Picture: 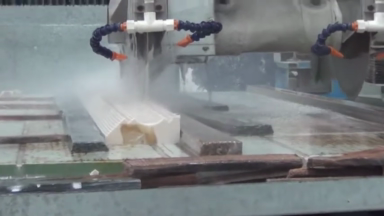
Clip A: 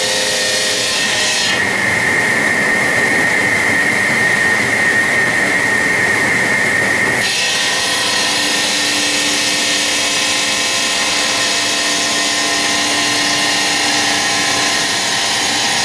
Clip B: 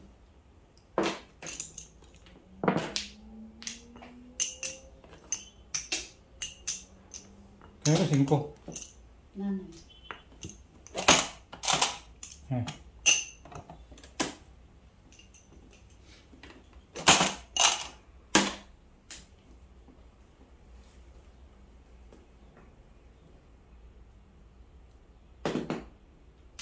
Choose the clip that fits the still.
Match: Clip A